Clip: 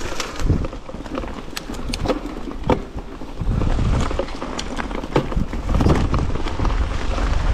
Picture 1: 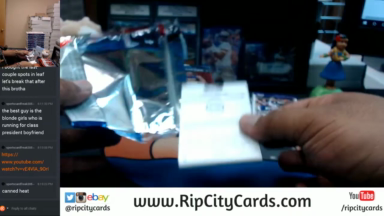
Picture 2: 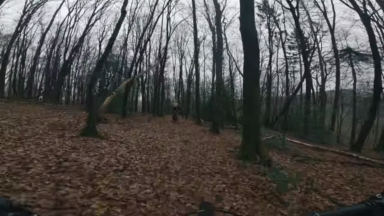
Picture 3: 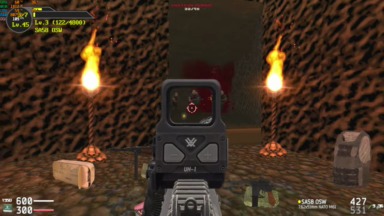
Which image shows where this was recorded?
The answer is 2